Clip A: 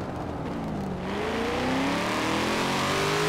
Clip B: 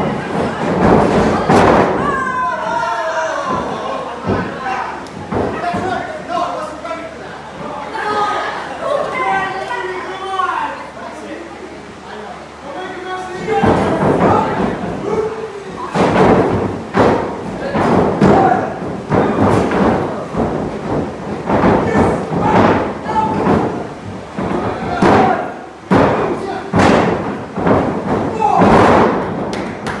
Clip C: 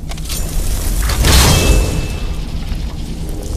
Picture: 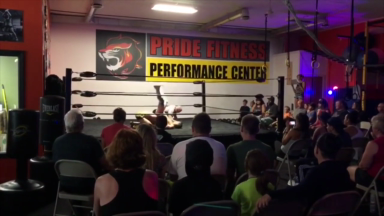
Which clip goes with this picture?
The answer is B